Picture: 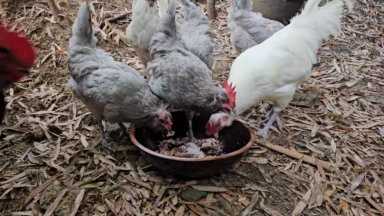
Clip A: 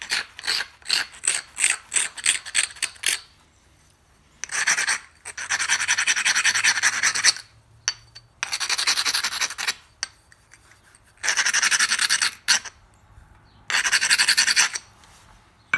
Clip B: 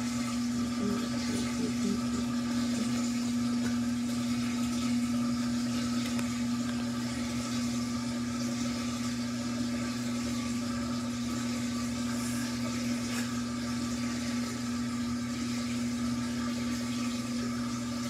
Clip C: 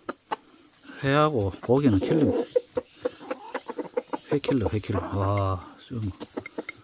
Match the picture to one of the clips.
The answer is C